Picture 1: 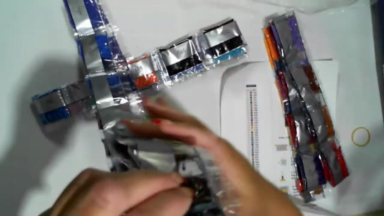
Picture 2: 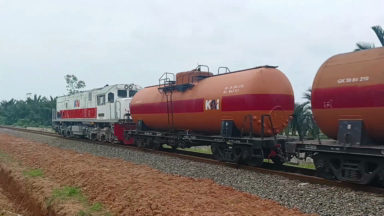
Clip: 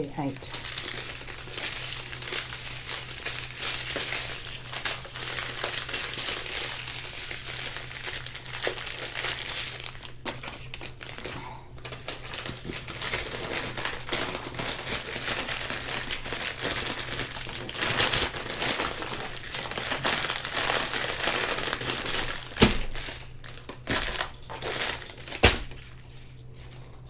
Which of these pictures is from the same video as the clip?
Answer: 1